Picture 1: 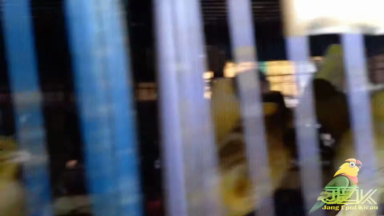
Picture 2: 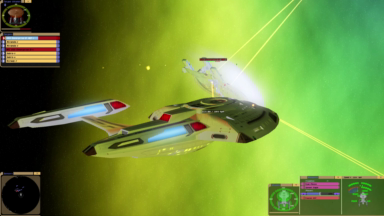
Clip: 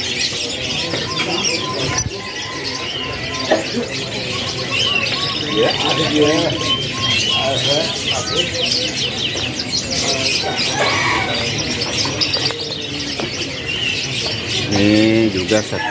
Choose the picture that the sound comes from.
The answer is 1